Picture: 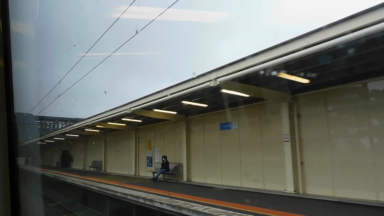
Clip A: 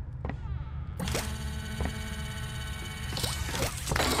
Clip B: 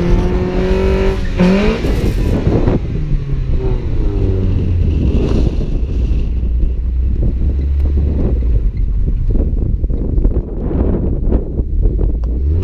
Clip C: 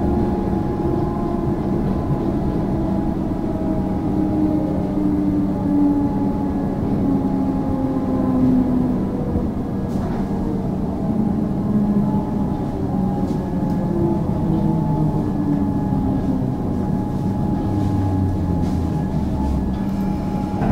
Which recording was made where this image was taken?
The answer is C